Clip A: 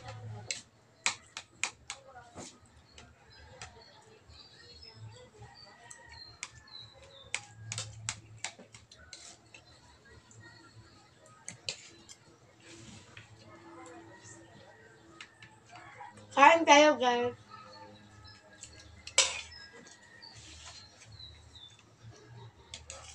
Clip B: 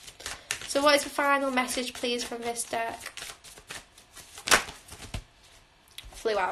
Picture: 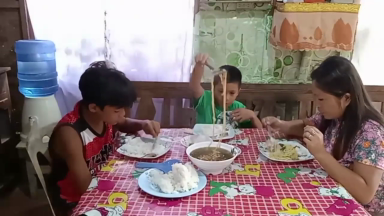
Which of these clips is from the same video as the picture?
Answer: A